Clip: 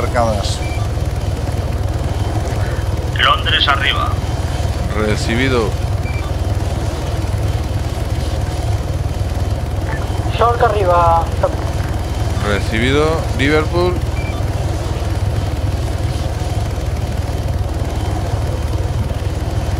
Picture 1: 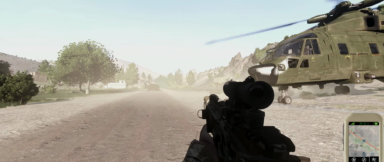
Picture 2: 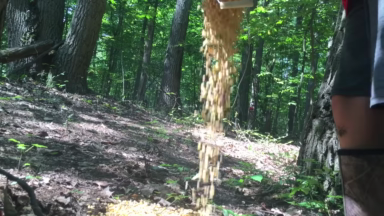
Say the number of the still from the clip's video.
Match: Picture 1